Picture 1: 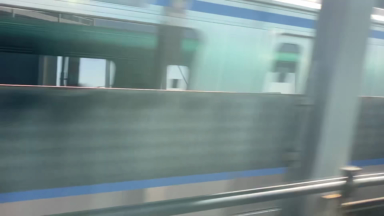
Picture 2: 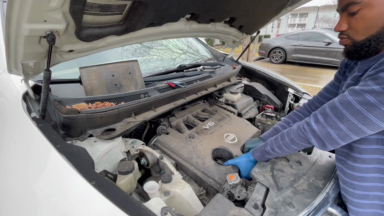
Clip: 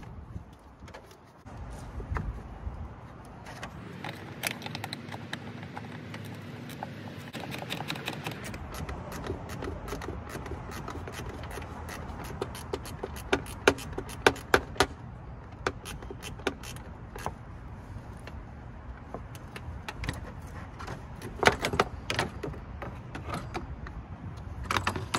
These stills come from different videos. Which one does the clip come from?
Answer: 2